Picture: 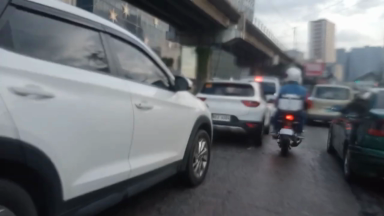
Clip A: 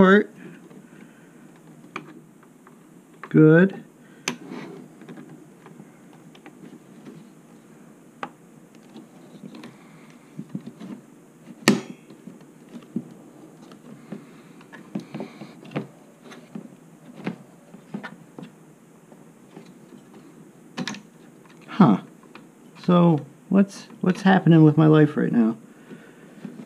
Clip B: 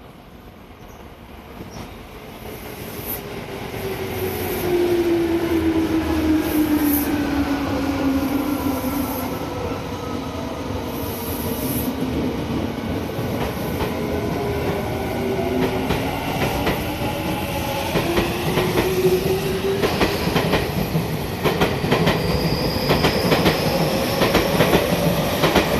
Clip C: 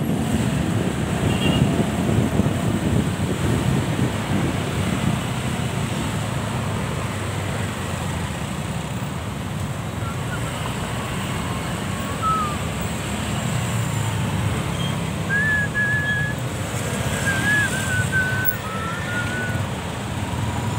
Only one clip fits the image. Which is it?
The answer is C